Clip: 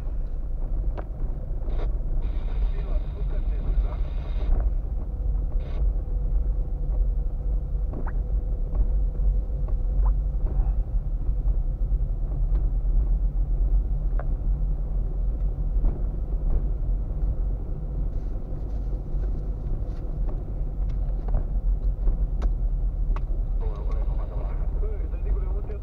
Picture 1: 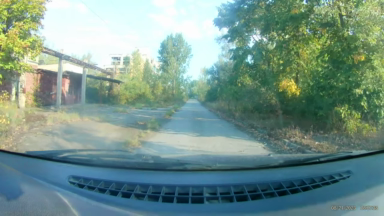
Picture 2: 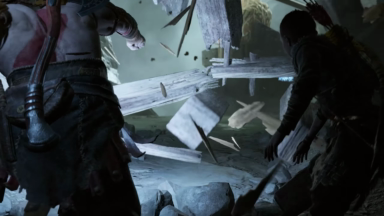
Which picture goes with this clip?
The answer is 1